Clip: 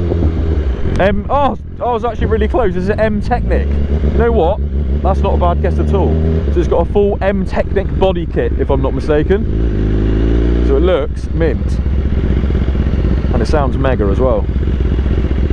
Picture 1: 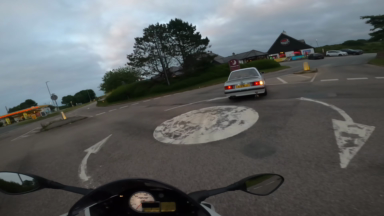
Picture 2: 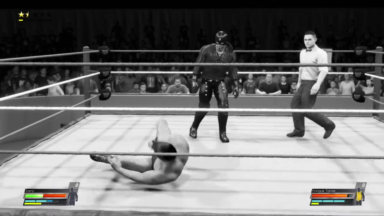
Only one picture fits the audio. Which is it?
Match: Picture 1